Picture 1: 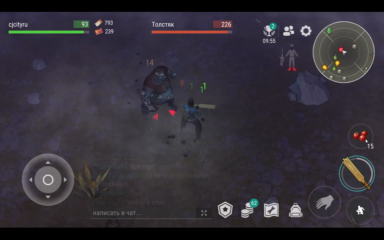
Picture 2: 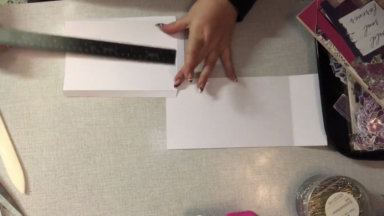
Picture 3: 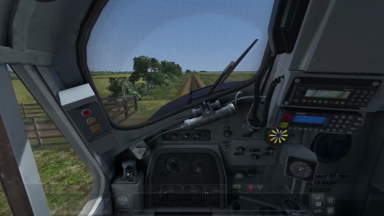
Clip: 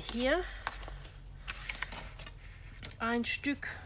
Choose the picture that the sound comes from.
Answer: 2